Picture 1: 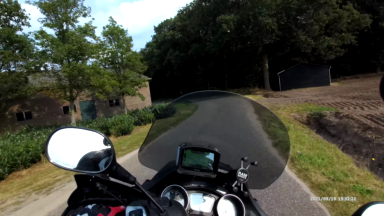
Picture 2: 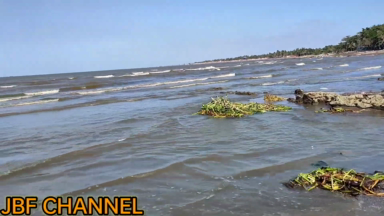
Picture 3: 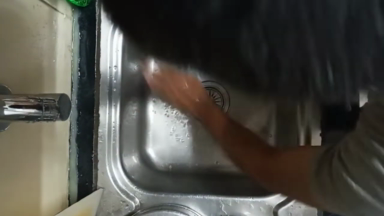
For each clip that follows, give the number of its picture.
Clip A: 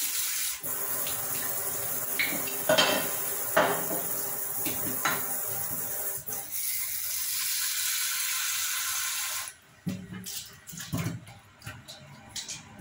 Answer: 3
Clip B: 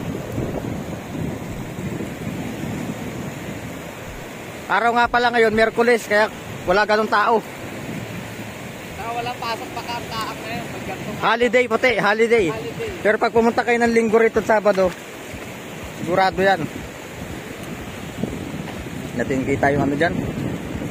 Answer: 2